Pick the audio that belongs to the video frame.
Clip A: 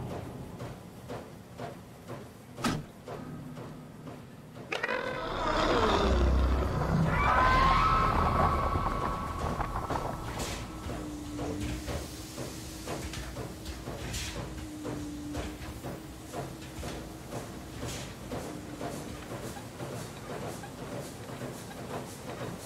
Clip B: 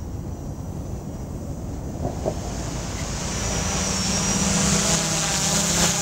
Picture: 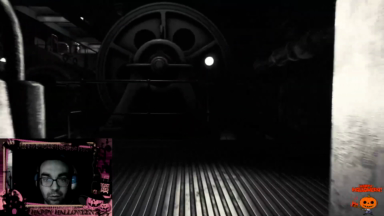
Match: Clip A